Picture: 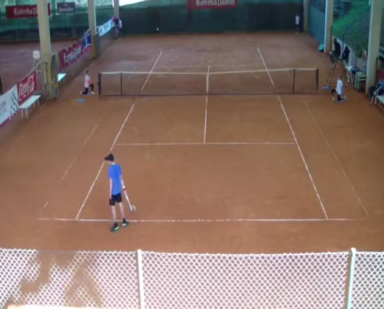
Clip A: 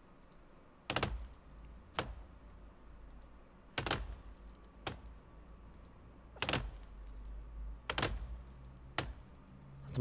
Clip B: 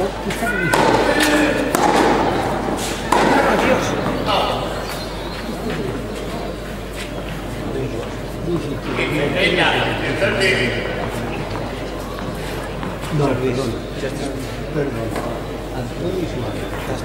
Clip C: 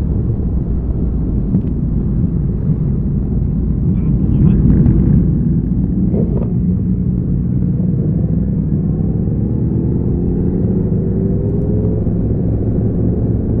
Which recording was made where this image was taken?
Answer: B